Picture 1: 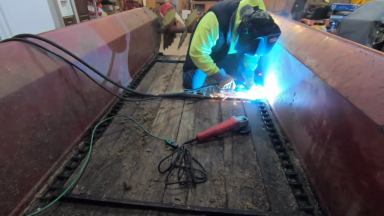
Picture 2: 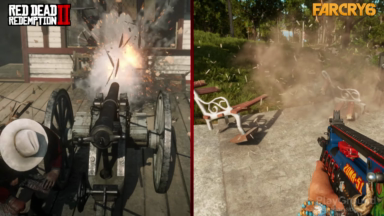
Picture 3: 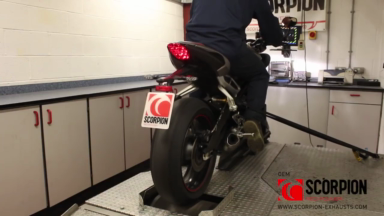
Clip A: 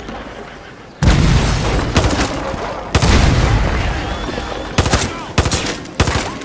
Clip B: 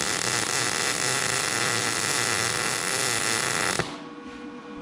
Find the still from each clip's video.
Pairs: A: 2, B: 1